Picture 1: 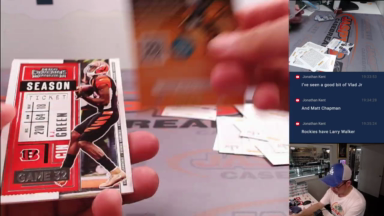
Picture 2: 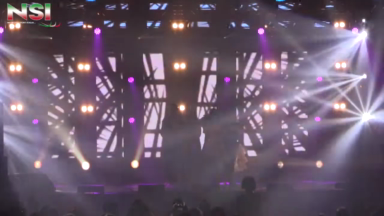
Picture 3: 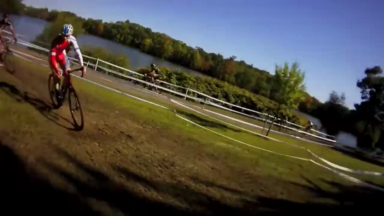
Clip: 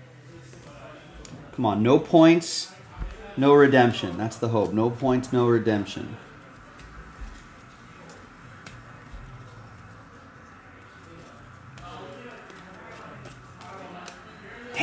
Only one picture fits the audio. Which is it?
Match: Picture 1